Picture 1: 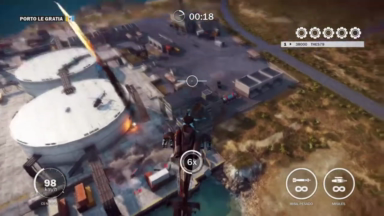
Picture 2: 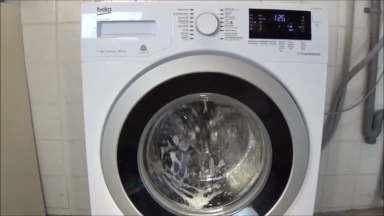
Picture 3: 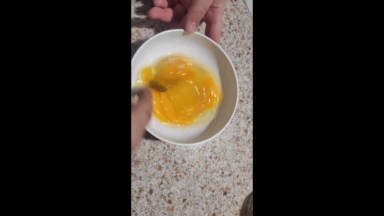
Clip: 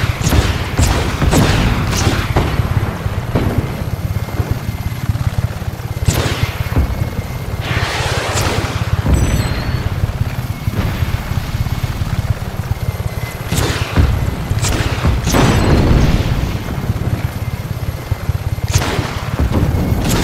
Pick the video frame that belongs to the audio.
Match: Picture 1